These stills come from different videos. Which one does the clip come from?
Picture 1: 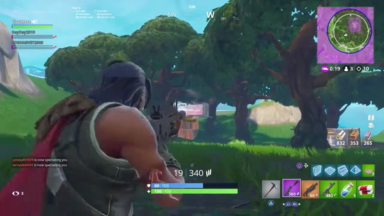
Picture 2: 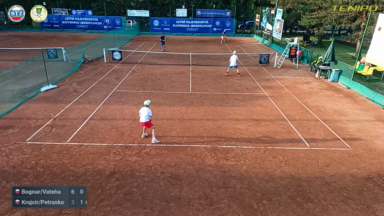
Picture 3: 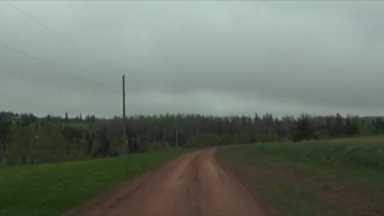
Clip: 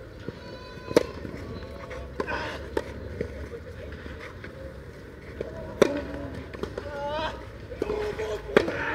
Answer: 2